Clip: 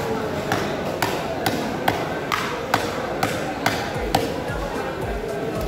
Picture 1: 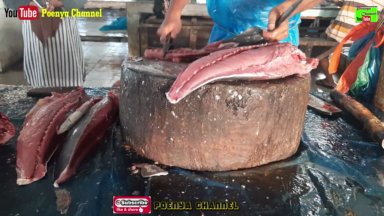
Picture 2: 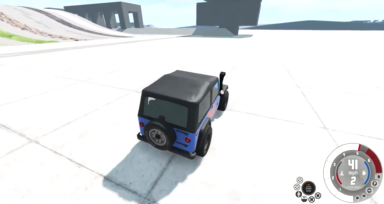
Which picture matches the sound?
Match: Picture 1